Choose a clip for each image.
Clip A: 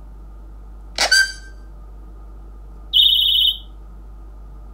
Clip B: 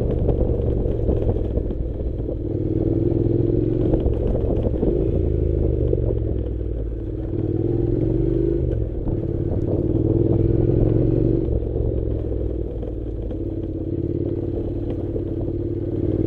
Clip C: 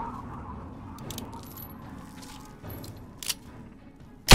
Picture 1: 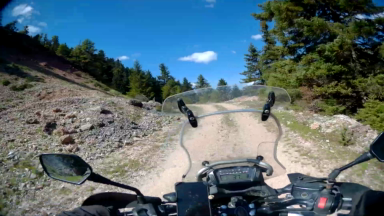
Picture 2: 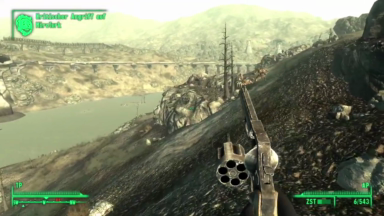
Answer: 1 B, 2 C